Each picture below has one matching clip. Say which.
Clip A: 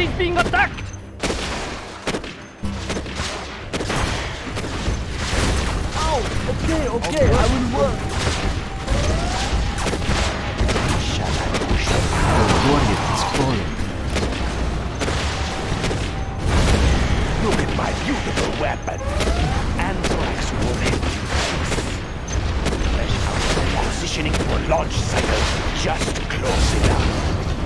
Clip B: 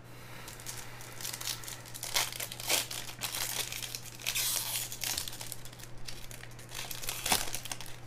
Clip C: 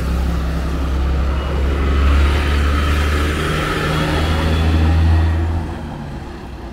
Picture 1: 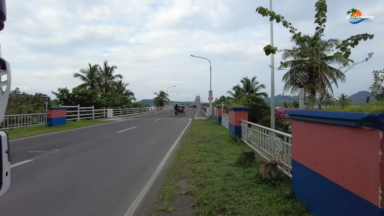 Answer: C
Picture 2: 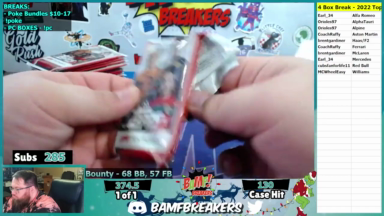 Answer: B